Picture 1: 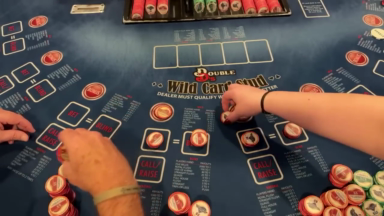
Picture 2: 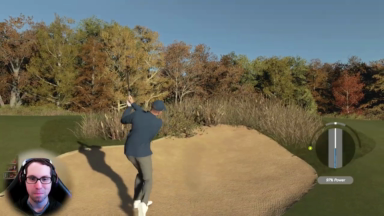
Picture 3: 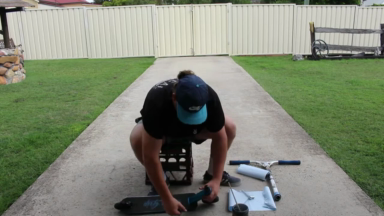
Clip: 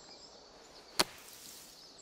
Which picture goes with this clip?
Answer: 2